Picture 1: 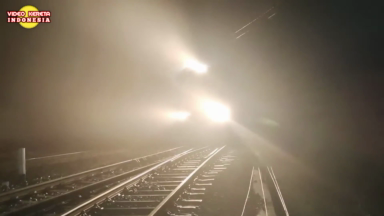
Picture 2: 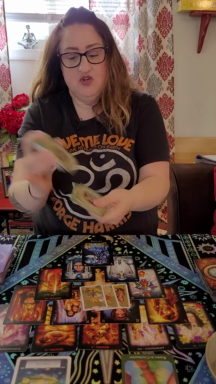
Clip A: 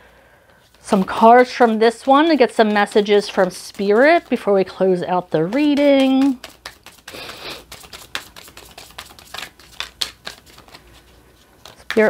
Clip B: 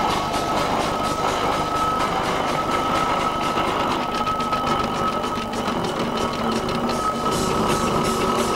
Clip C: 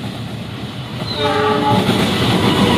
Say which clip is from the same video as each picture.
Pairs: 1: C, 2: A